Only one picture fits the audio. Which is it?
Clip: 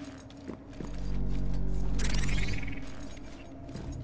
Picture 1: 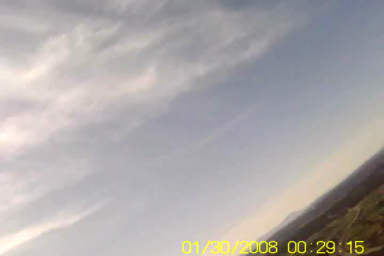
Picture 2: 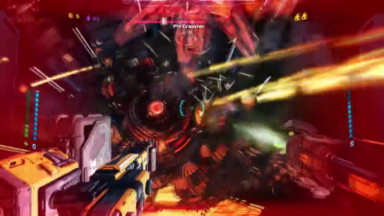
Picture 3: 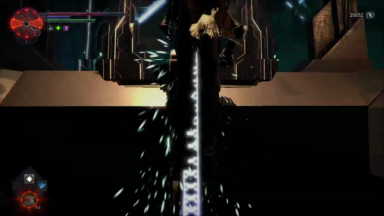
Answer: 3